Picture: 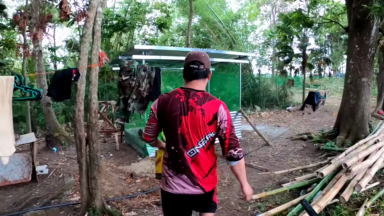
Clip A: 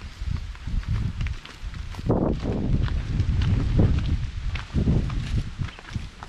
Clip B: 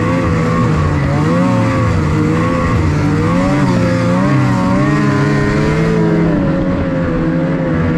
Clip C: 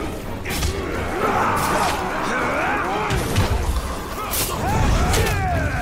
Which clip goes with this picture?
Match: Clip A